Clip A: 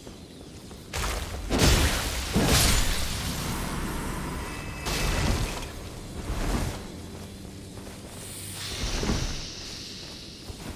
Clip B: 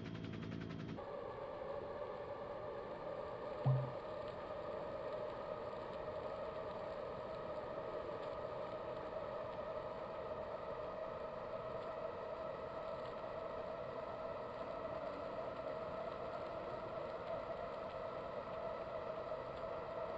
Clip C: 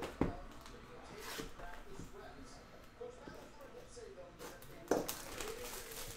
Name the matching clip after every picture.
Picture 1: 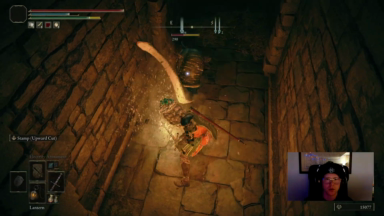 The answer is A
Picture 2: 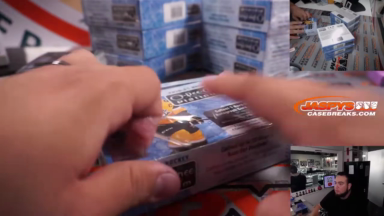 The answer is C